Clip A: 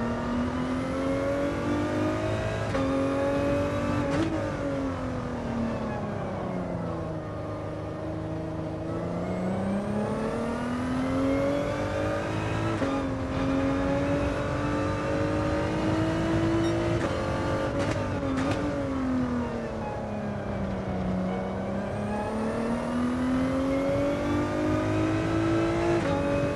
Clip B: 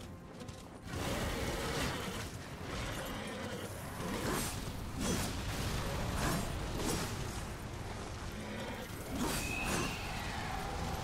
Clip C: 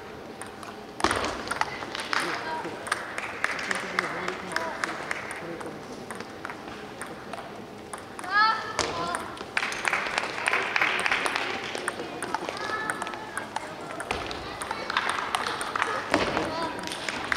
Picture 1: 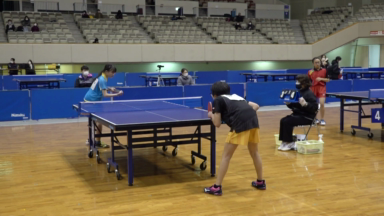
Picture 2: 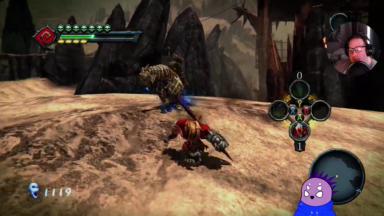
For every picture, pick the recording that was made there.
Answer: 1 C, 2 B